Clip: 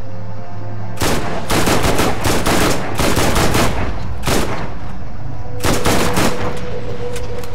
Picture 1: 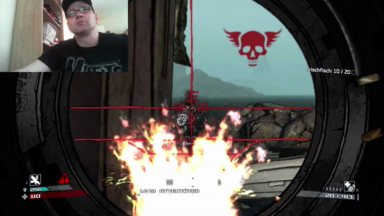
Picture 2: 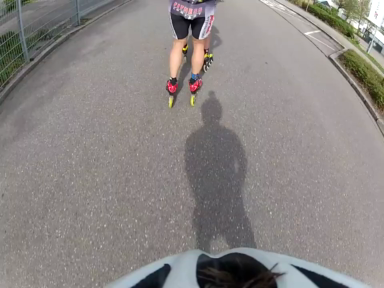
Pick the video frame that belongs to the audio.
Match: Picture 1